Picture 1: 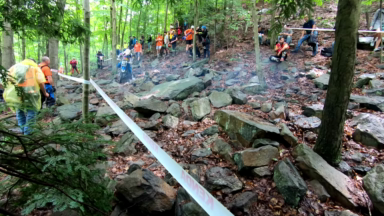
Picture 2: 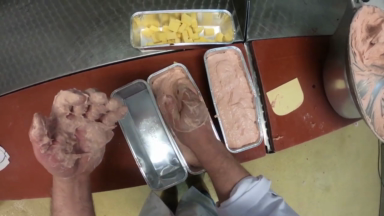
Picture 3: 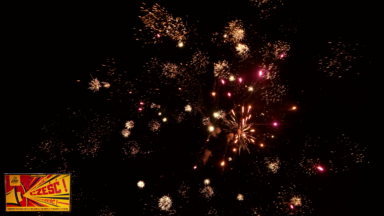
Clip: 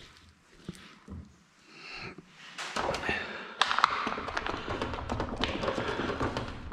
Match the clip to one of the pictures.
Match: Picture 2